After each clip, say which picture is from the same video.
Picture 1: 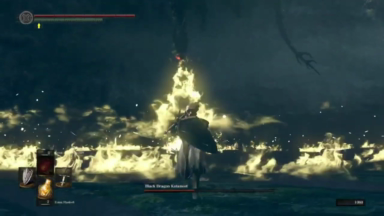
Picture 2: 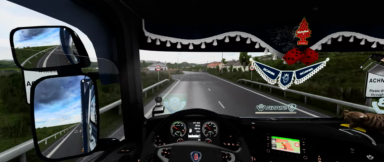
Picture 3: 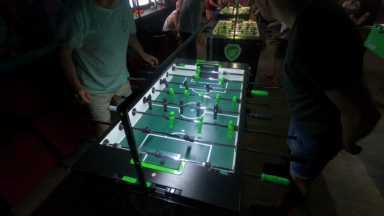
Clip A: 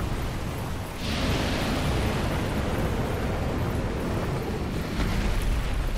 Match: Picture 1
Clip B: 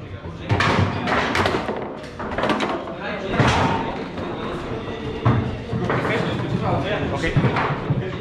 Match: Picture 3